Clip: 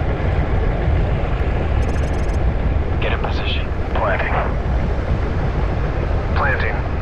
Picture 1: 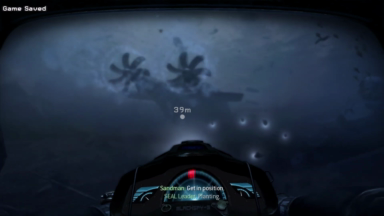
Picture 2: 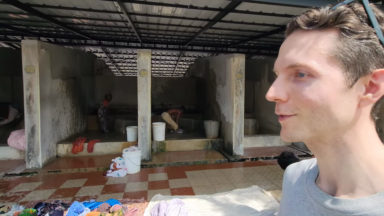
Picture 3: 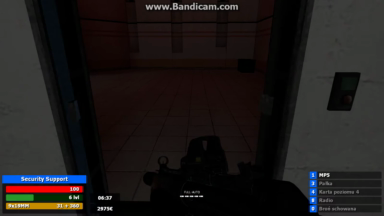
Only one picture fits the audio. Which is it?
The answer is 1